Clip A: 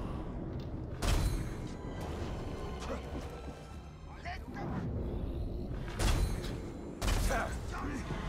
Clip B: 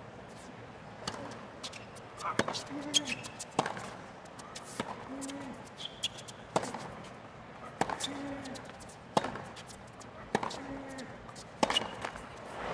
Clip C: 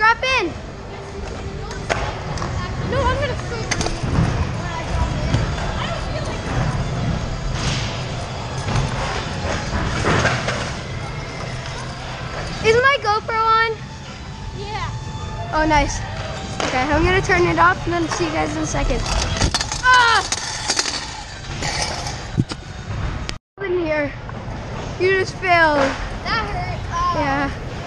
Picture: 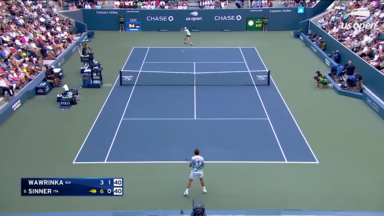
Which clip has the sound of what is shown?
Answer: B